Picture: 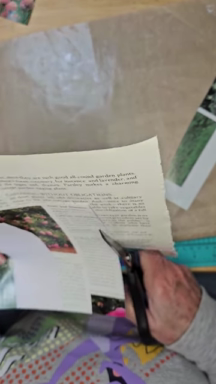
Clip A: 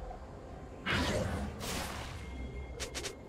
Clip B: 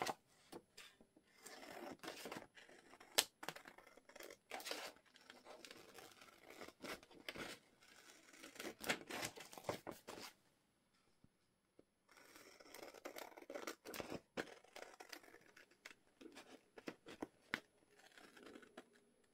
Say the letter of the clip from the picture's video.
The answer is B